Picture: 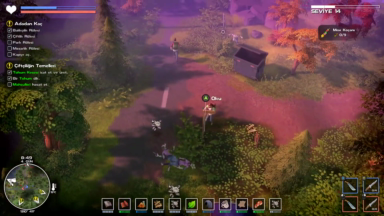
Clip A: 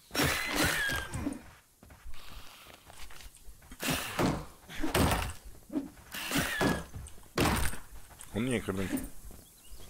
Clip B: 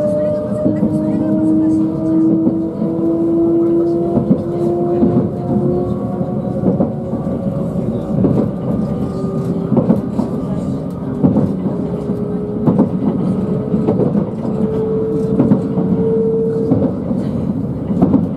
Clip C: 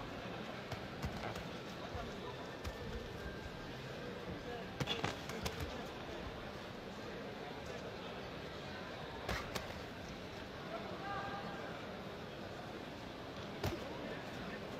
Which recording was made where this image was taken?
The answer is A